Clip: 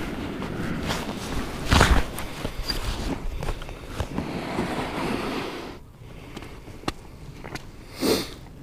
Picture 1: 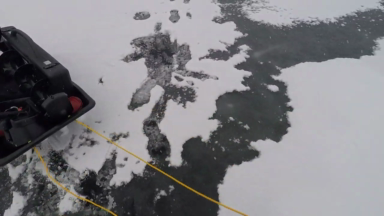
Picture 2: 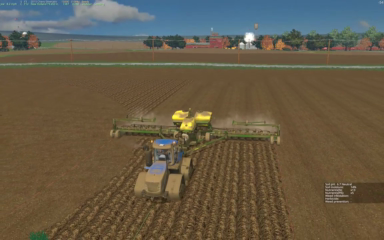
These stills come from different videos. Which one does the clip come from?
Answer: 1